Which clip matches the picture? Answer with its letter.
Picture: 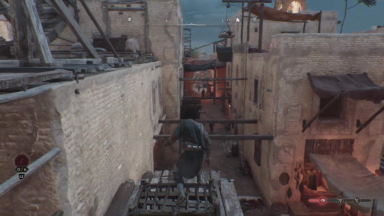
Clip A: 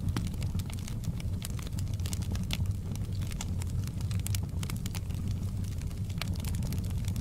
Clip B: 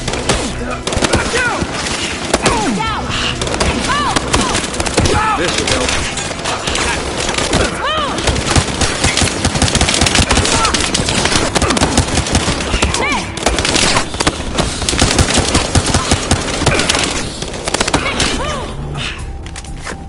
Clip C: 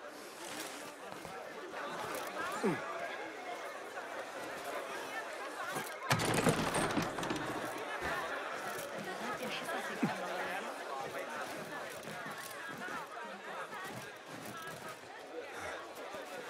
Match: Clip C